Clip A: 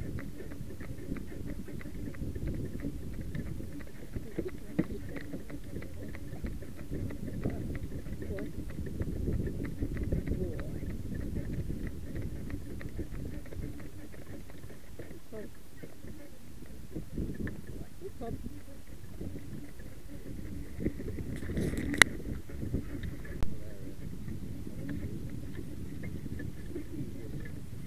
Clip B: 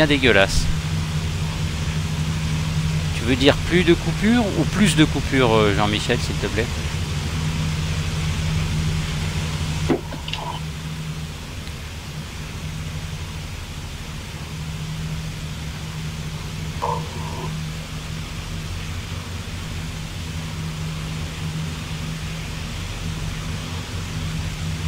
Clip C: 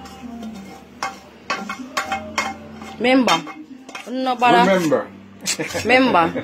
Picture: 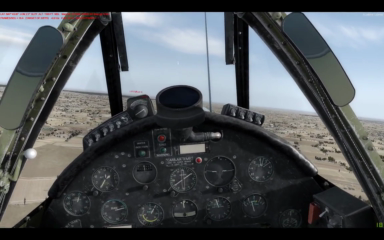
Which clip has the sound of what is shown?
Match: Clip B